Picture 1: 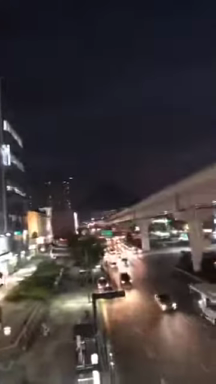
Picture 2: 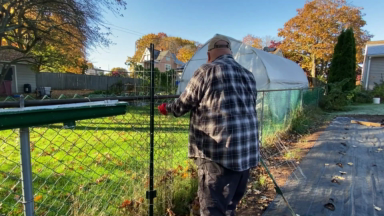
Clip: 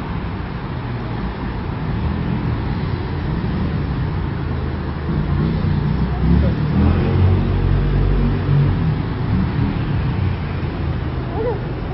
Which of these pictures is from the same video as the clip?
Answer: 1